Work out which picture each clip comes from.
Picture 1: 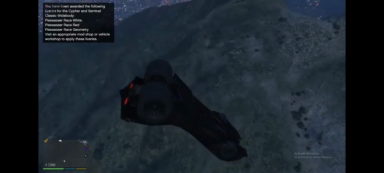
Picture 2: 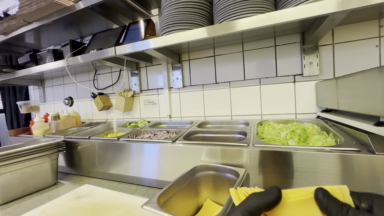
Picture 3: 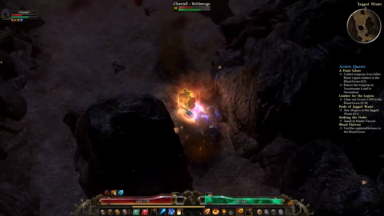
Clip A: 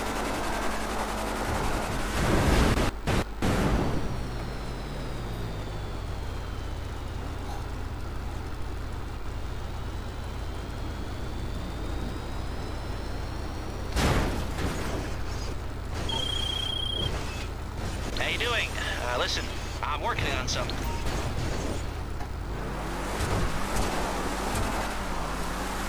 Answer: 1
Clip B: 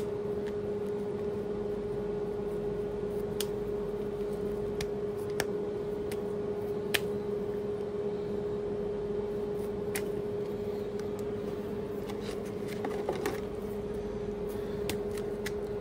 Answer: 2